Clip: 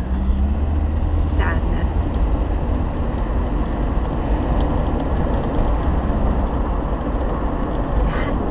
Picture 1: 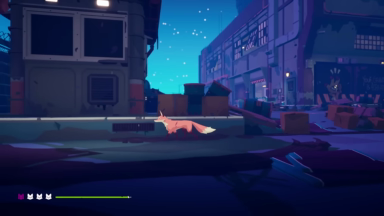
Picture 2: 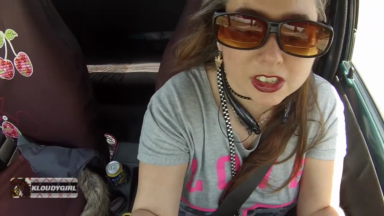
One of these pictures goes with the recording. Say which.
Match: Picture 2